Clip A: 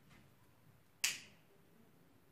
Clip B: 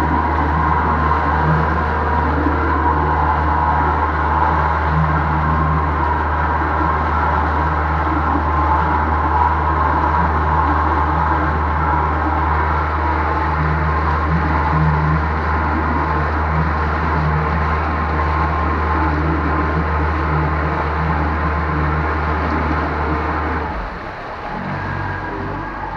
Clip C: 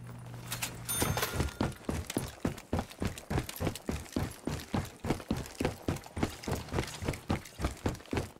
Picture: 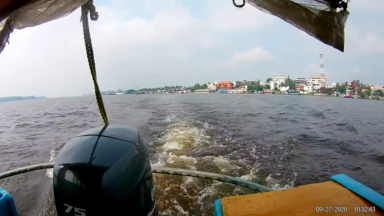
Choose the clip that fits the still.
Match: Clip B